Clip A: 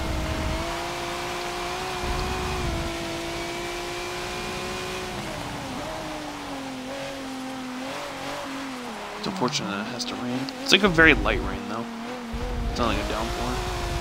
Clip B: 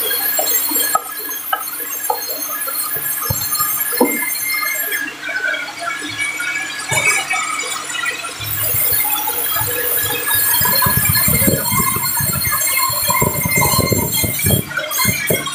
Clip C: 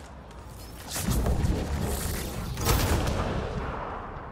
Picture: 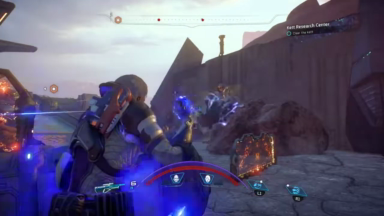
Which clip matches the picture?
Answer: C